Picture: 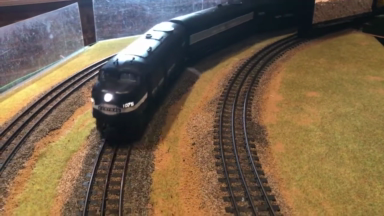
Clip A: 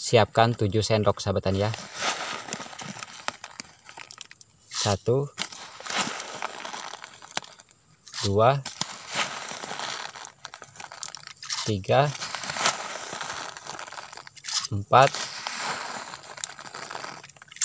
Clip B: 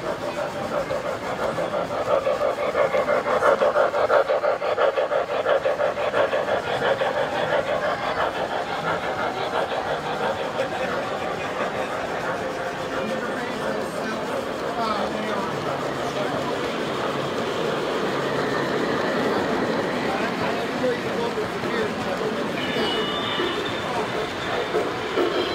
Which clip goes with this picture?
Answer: B